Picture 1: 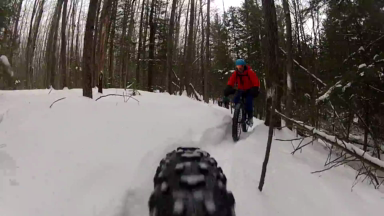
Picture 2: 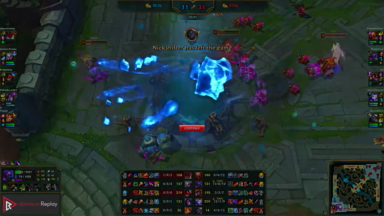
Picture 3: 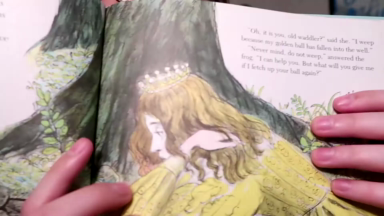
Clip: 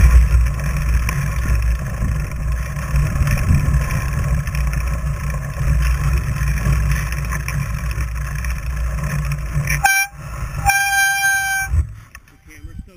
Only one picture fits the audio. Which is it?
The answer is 1